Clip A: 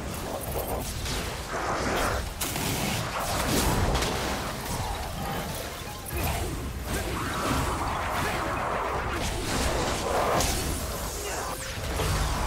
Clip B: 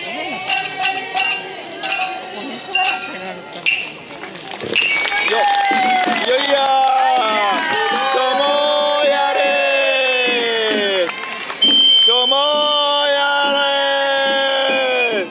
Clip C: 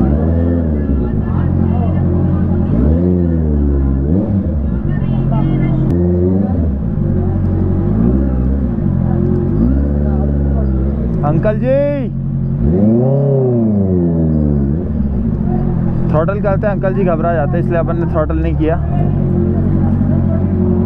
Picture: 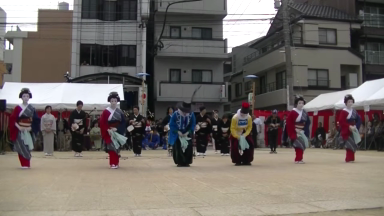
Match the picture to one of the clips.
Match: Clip B